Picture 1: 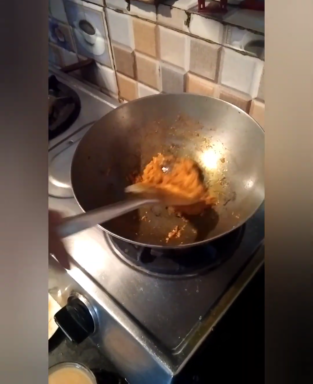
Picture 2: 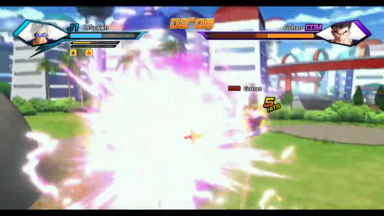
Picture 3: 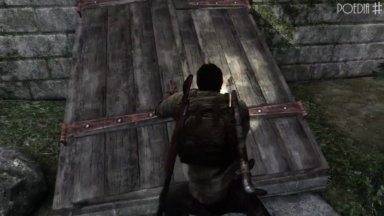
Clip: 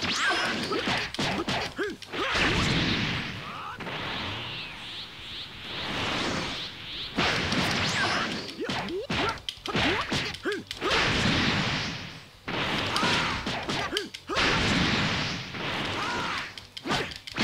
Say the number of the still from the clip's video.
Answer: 2